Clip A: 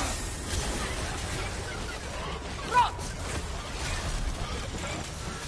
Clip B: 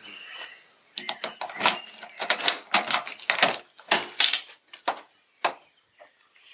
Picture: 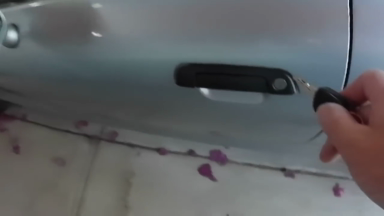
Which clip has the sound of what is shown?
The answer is B